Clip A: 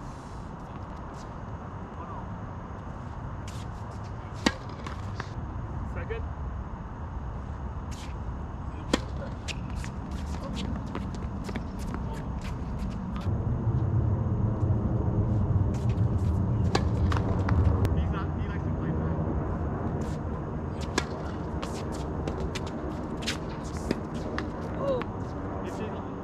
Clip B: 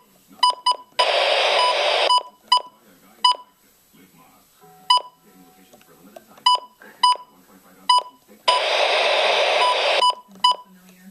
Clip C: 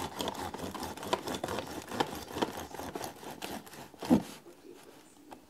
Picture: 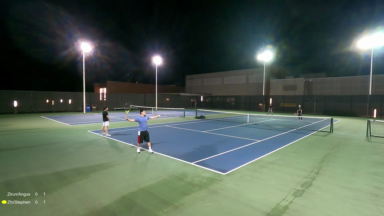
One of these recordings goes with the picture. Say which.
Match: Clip A